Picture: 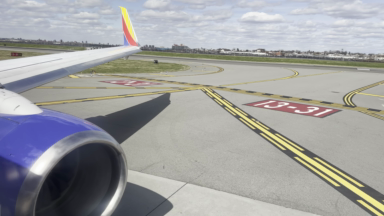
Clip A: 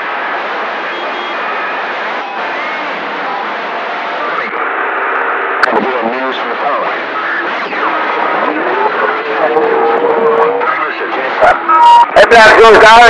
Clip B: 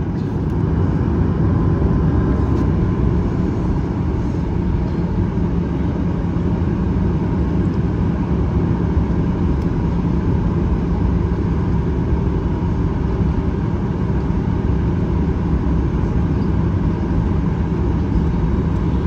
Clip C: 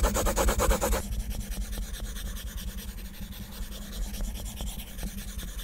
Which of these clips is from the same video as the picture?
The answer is B